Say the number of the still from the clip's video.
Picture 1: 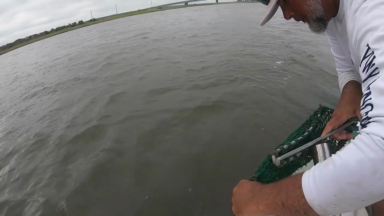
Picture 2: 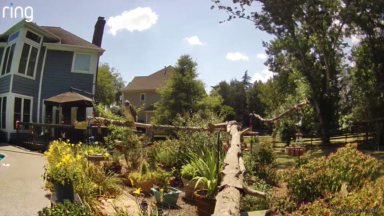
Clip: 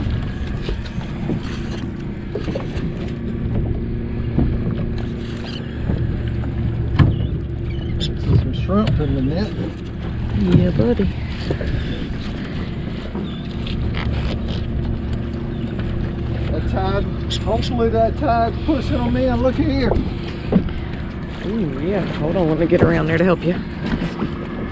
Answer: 1